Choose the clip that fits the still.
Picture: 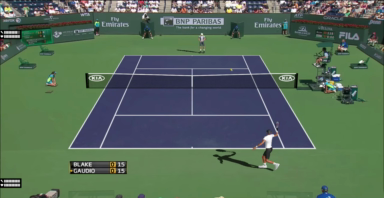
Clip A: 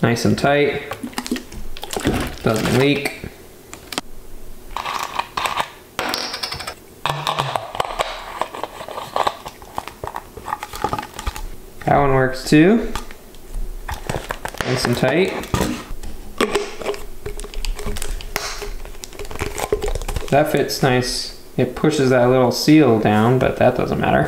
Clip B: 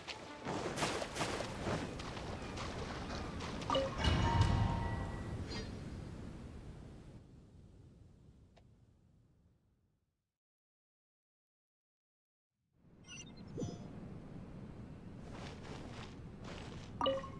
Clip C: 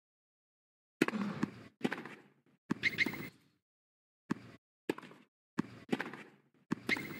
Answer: C